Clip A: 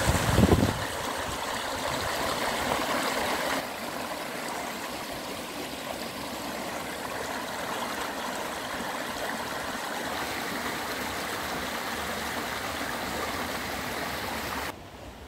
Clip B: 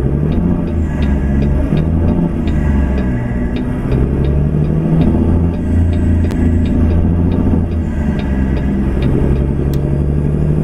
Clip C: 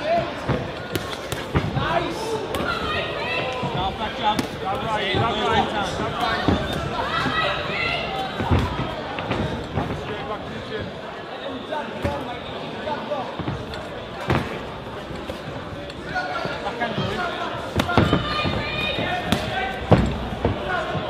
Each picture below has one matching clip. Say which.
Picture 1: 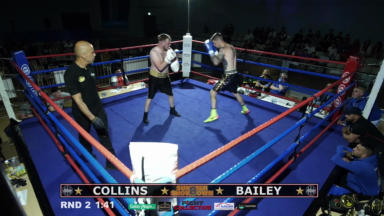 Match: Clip C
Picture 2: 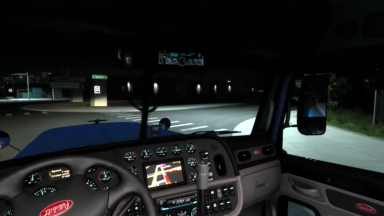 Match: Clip B